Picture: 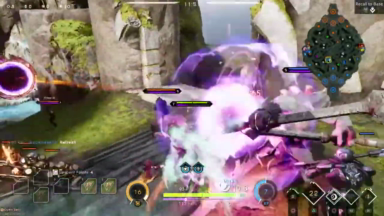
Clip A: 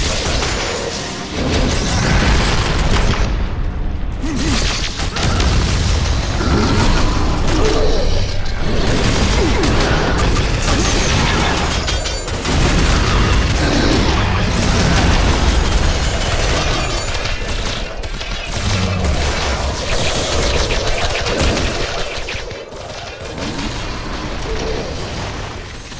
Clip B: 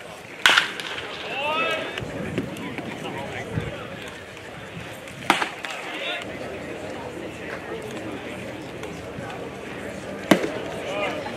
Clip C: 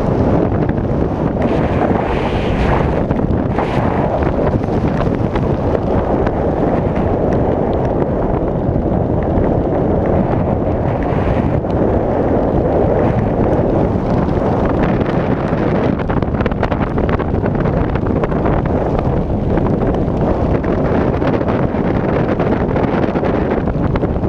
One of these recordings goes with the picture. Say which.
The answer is A